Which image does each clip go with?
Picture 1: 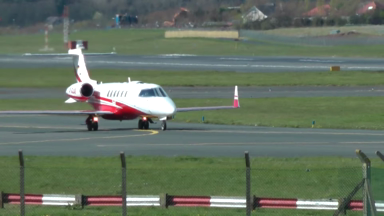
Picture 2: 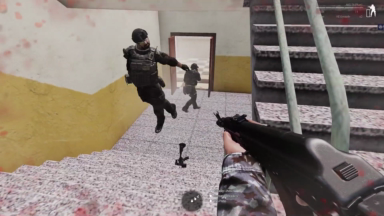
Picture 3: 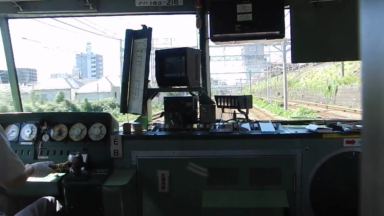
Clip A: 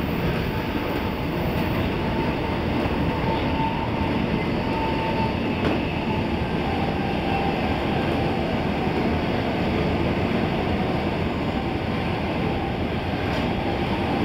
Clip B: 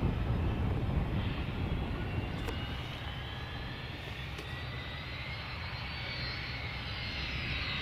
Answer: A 3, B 1